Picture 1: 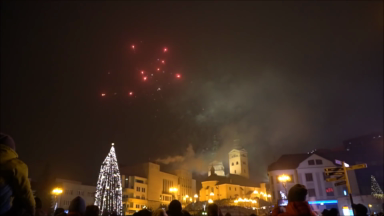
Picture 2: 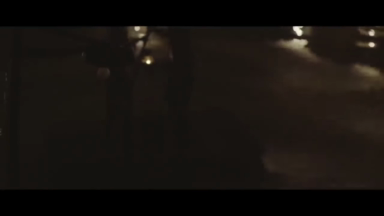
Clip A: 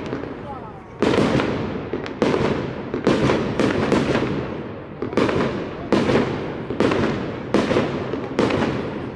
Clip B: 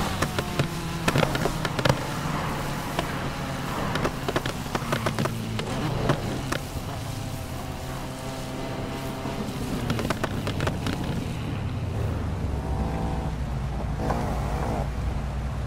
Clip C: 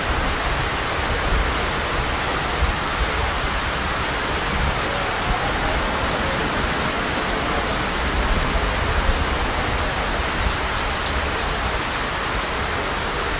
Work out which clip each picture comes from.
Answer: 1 A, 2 C